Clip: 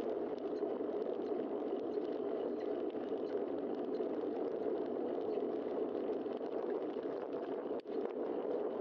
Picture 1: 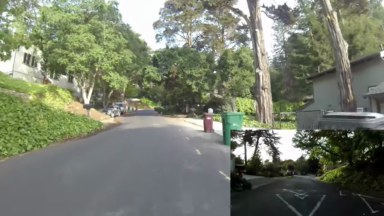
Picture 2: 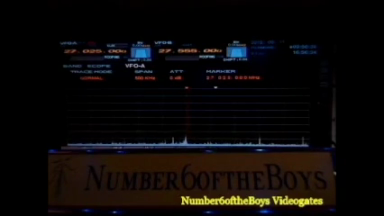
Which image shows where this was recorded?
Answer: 1